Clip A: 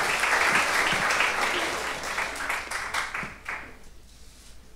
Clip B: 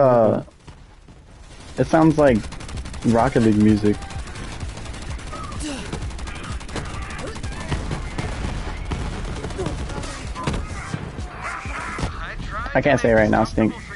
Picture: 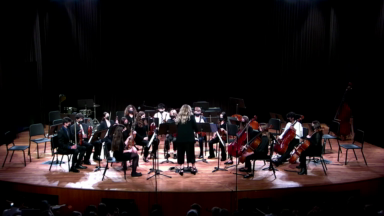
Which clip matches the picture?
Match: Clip A